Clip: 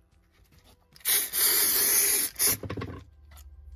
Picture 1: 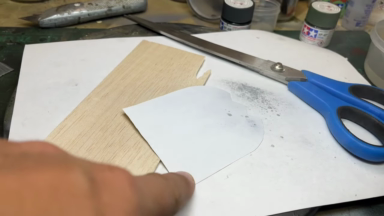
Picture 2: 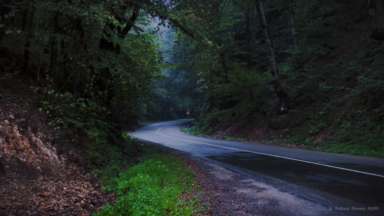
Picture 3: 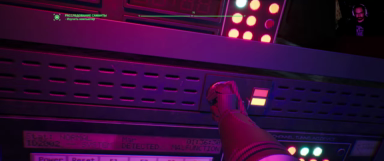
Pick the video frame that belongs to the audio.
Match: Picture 1